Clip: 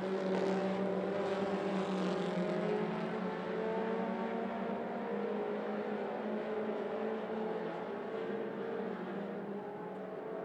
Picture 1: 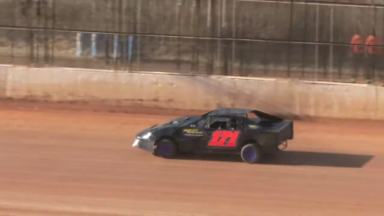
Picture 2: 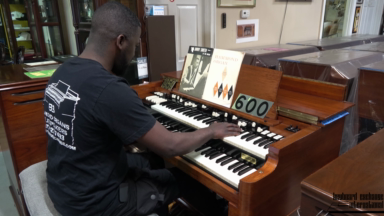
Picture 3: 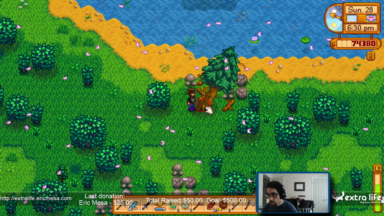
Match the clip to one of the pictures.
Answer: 1